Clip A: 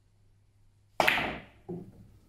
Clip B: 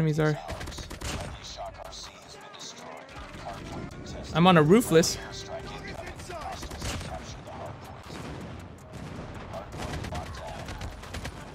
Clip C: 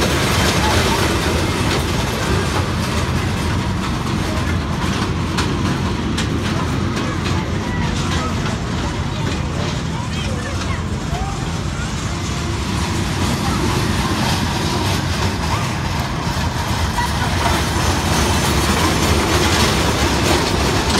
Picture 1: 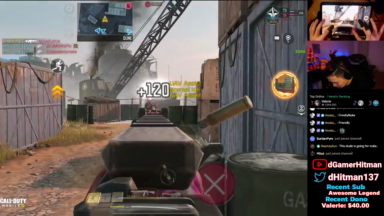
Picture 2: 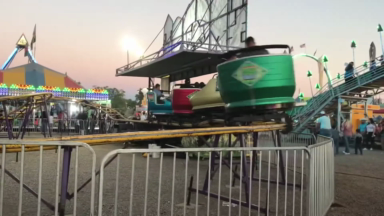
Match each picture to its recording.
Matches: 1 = B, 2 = C